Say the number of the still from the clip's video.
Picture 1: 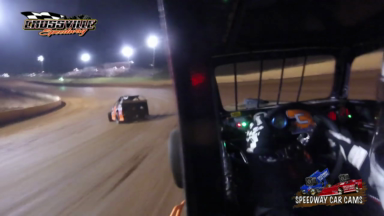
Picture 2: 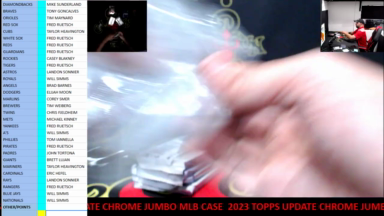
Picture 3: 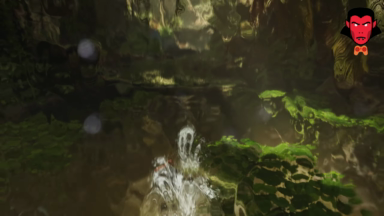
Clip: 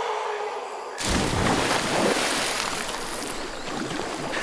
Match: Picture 3